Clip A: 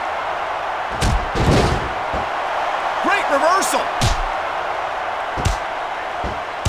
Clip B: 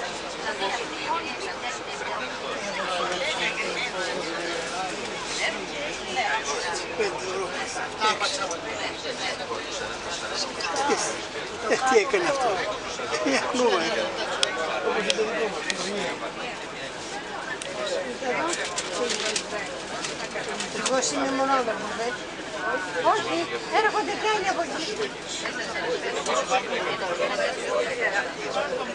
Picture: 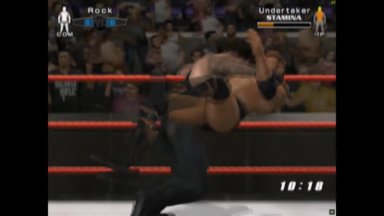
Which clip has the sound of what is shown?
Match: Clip A